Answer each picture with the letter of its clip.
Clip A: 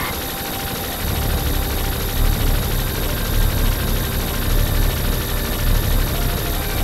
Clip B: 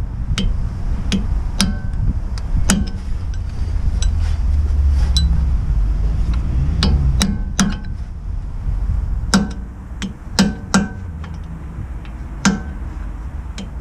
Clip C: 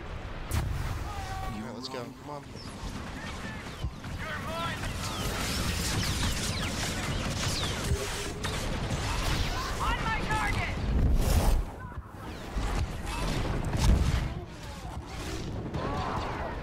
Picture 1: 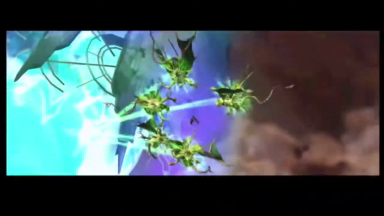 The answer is A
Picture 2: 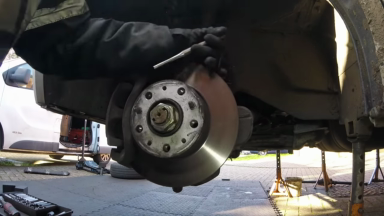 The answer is B